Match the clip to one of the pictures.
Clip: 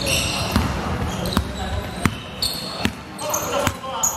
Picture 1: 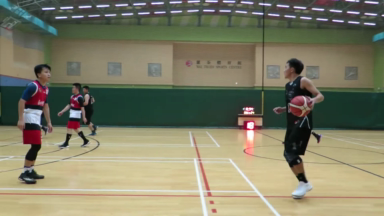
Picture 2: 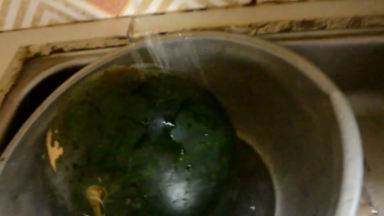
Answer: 1